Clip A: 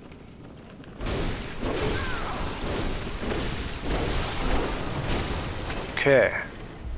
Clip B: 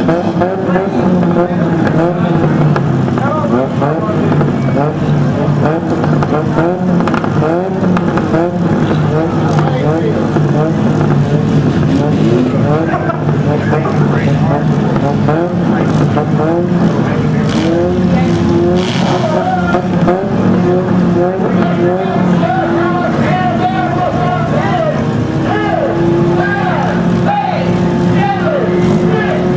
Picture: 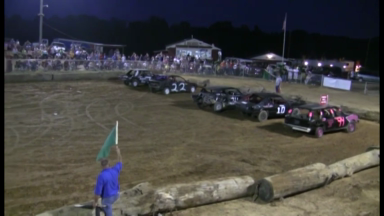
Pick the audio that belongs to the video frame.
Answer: B